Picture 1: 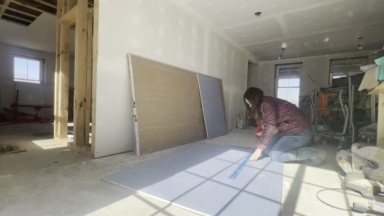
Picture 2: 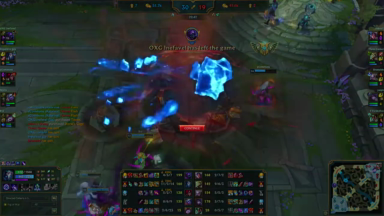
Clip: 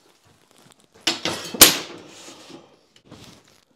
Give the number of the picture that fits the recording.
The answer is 1